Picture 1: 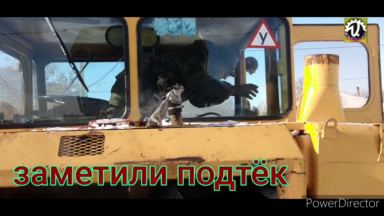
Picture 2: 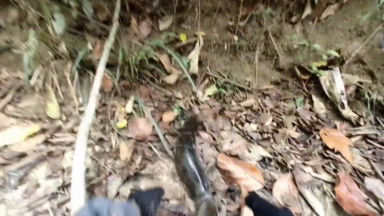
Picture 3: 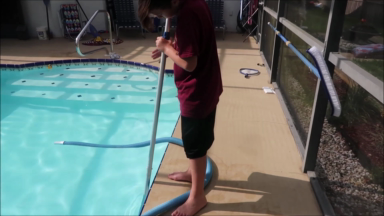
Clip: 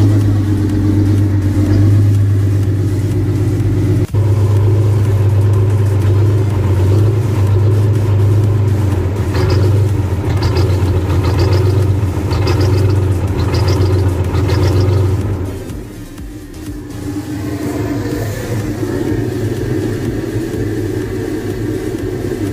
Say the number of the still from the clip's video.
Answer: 1